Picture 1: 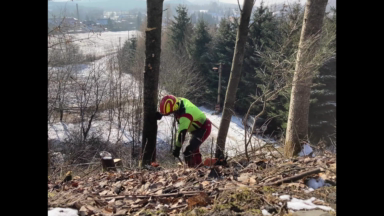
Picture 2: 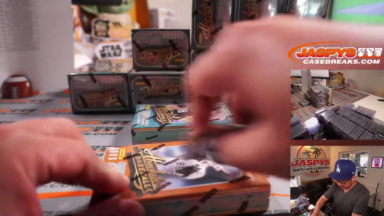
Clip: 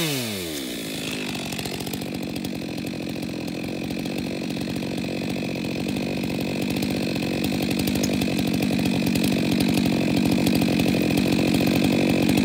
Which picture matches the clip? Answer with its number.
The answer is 1